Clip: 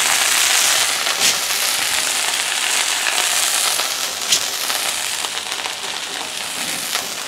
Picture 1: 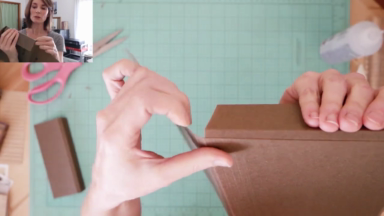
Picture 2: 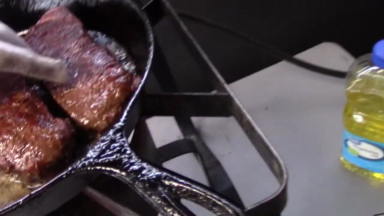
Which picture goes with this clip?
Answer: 2